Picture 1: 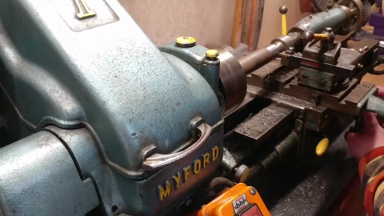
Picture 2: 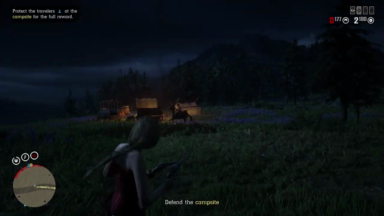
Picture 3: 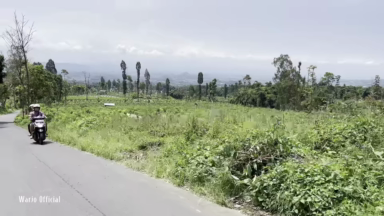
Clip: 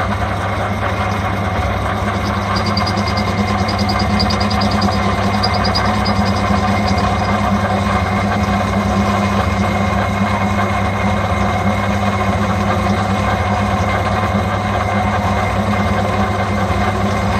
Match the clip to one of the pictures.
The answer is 1